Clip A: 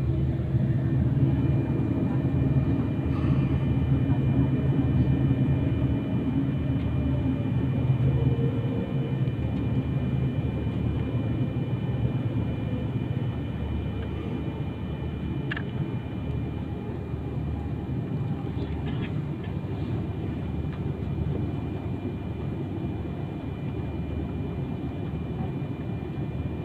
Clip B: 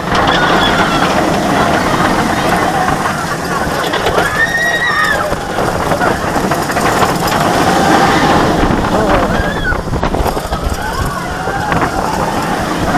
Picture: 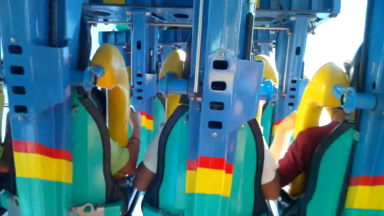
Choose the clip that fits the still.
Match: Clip B